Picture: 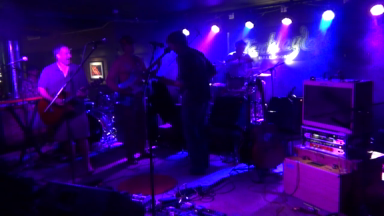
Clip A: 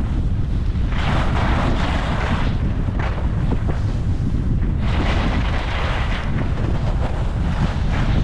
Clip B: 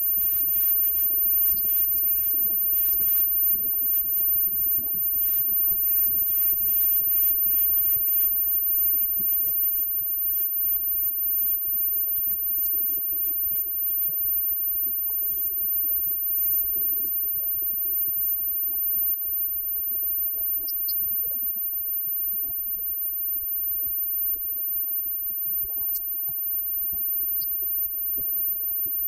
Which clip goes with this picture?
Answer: B